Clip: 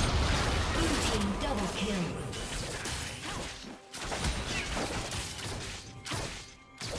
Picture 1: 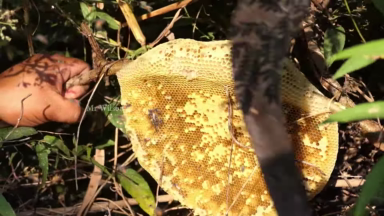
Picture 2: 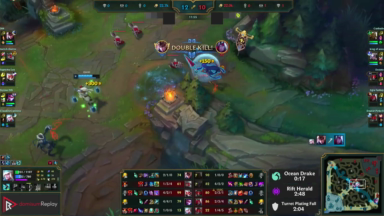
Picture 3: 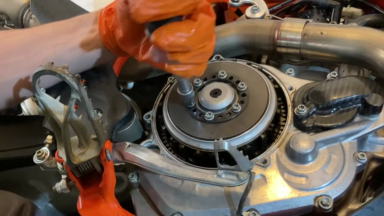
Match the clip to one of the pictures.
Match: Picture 2